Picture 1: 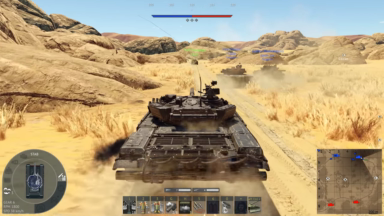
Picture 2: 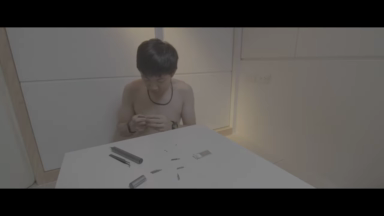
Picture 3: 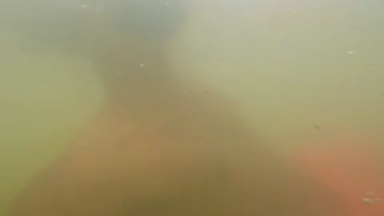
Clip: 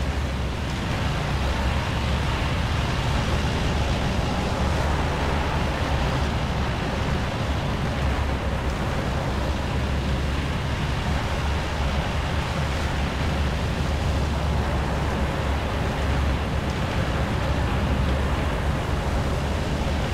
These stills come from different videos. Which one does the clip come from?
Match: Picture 1